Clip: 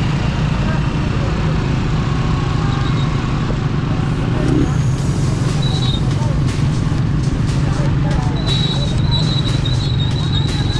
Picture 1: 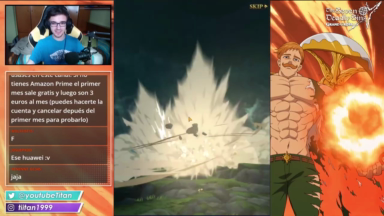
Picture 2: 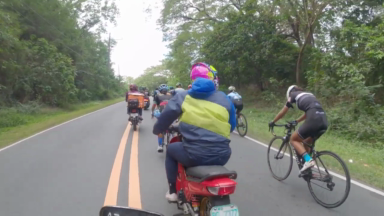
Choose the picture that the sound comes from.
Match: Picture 2